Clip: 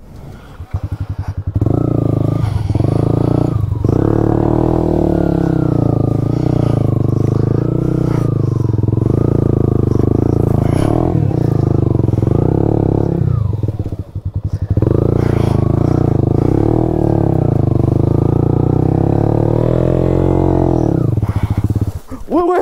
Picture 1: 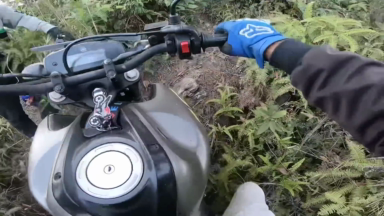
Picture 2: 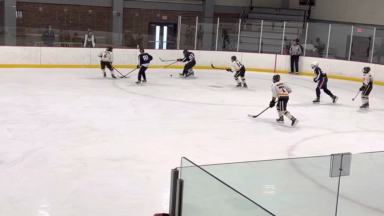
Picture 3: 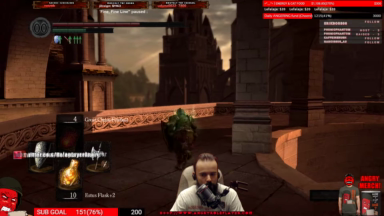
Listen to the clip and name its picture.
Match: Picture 1